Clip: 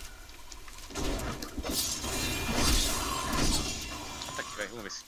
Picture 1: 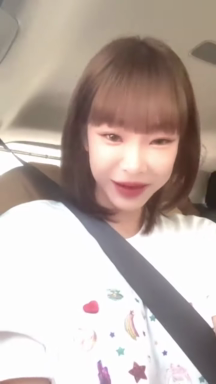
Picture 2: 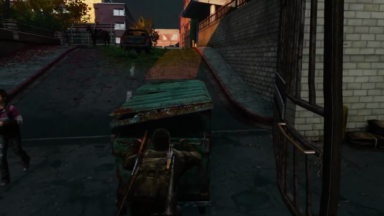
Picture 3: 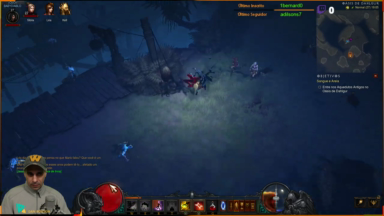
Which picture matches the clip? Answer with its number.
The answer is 3